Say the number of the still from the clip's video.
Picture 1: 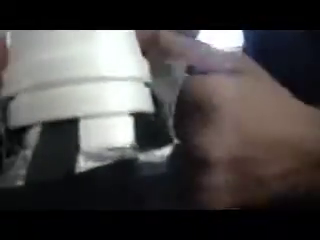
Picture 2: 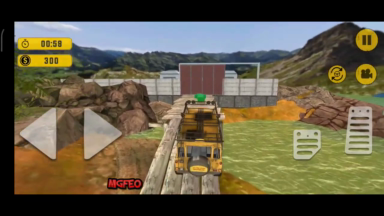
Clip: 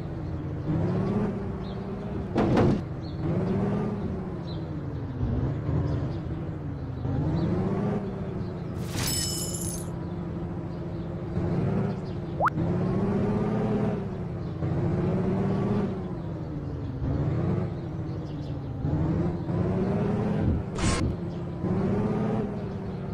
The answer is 2